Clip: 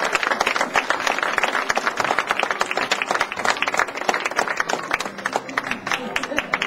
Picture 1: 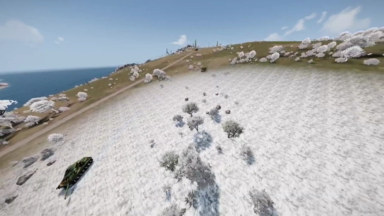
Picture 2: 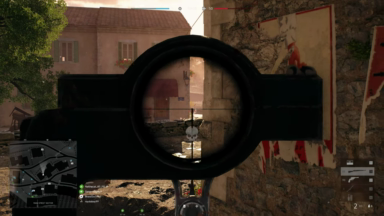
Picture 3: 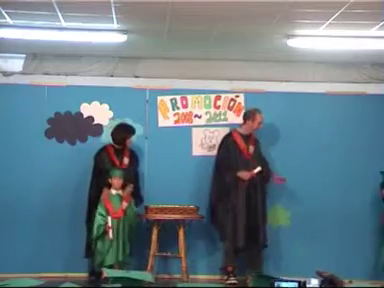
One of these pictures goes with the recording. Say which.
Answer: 3